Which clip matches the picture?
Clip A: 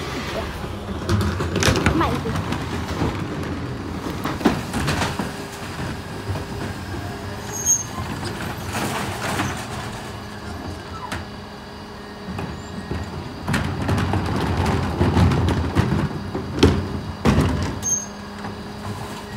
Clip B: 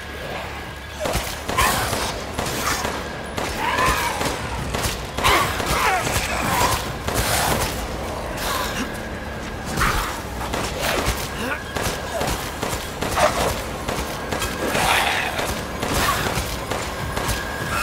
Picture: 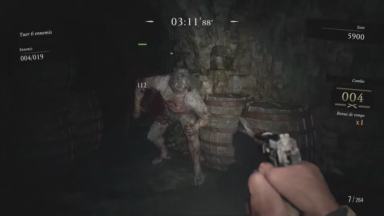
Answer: B